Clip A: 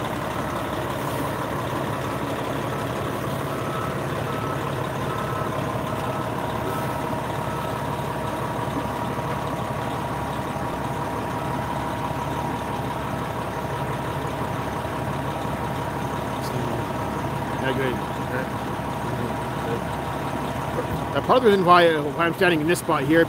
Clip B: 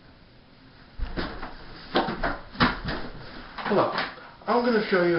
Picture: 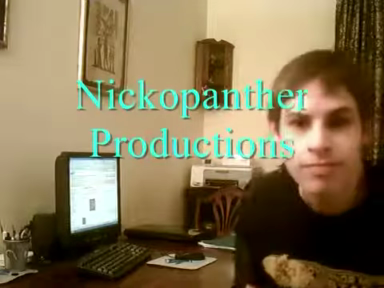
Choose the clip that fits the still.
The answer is B